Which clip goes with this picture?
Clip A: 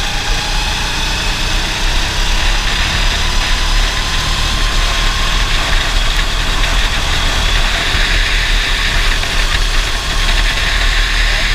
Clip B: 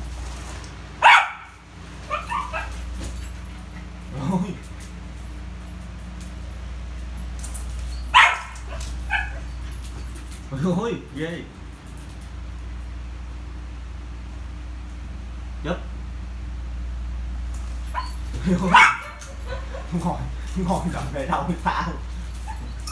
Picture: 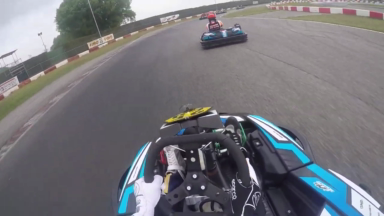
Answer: A